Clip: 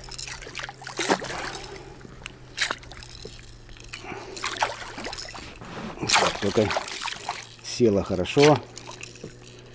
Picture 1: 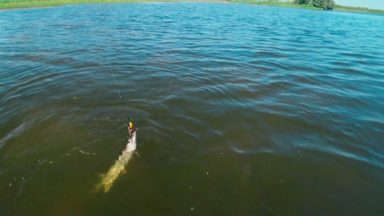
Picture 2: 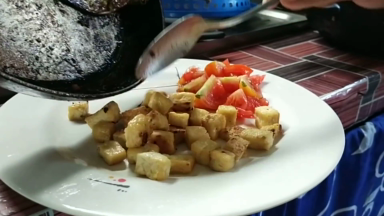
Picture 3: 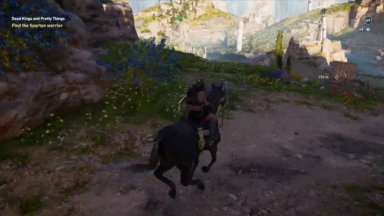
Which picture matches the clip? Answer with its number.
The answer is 1